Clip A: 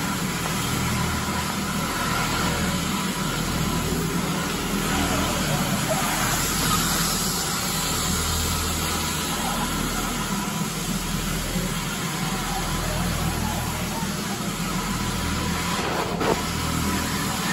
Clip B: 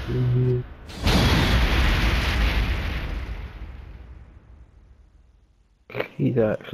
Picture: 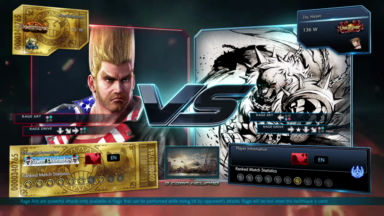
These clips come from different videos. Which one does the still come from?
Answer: B